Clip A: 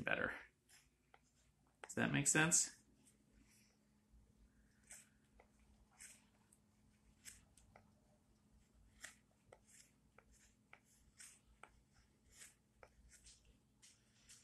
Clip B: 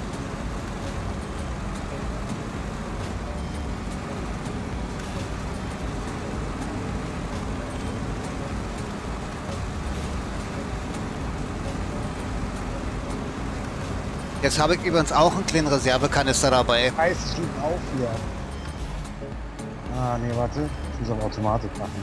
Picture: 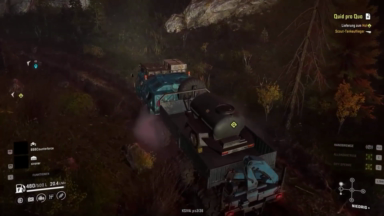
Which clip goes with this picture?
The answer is B